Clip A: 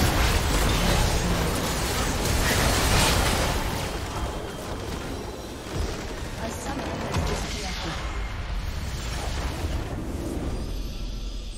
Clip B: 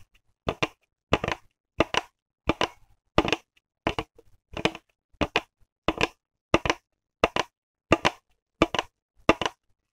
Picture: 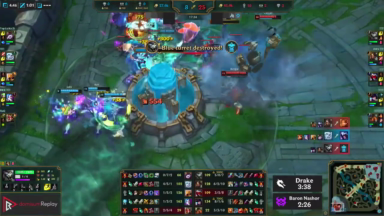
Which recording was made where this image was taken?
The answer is A